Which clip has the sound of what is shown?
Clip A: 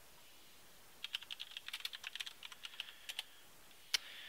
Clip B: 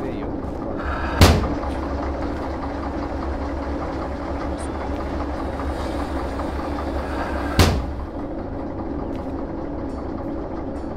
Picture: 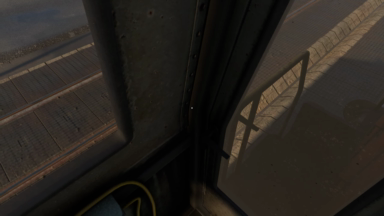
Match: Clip B